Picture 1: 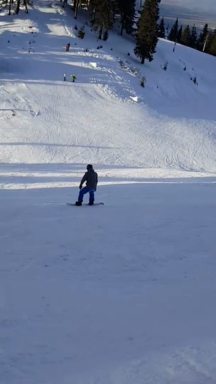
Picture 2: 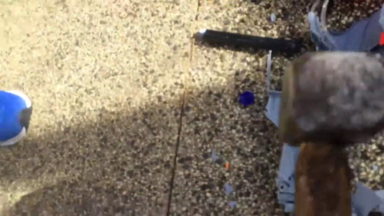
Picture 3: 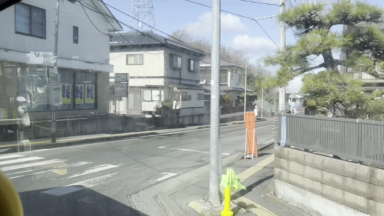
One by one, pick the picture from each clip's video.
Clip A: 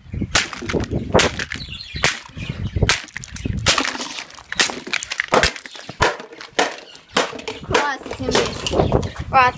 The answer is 2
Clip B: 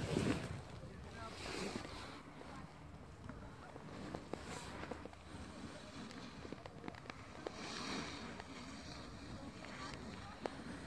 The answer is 1